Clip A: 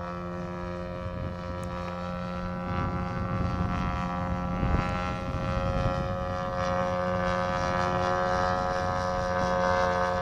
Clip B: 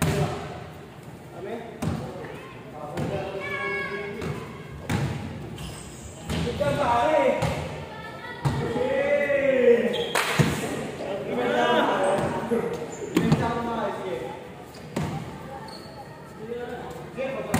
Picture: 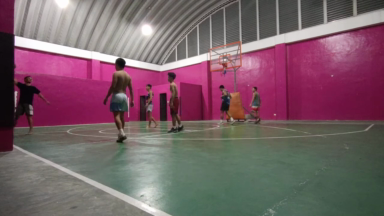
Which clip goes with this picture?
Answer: B